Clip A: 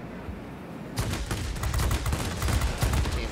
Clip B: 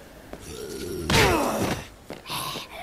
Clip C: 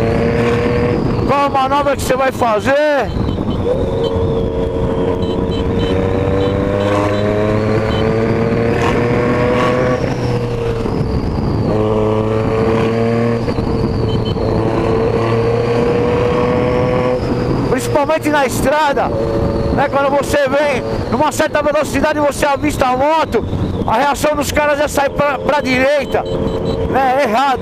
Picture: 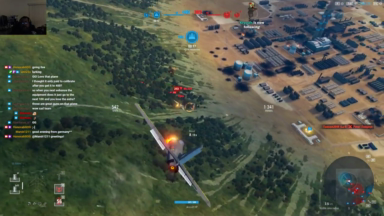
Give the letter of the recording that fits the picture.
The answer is A